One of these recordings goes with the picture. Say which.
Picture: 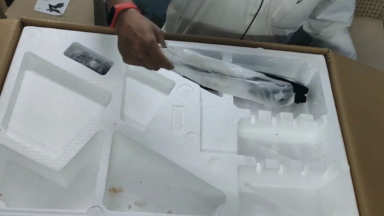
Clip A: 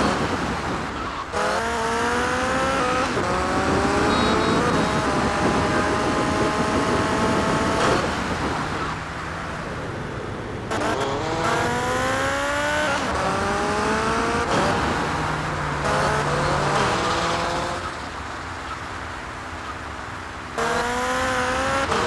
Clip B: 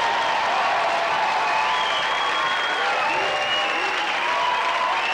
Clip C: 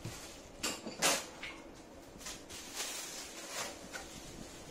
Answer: C